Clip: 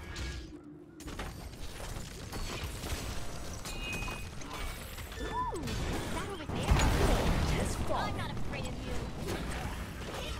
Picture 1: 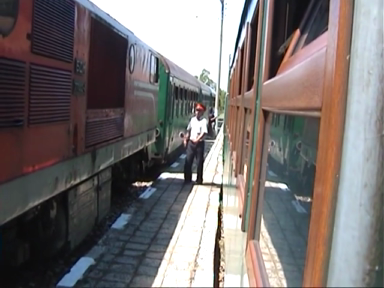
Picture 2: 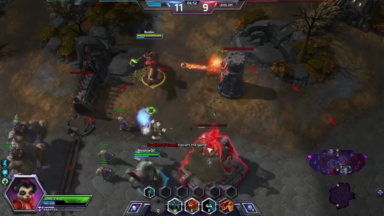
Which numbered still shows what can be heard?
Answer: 2